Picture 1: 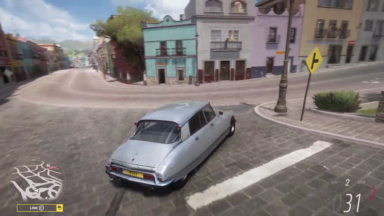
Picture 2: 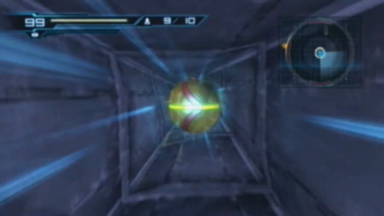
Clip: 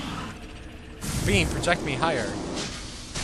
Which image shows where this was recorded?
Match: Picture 2